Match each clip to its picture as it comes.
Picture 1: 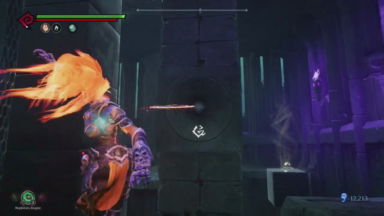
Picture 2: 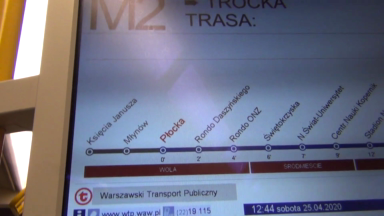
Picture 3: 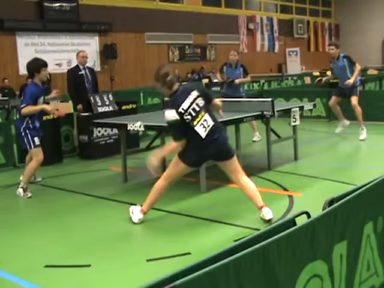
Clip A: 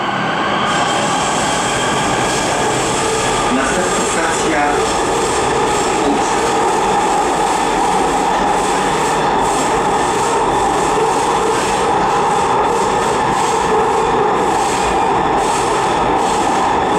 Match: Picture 2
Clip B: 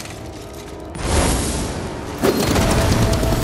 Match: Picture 1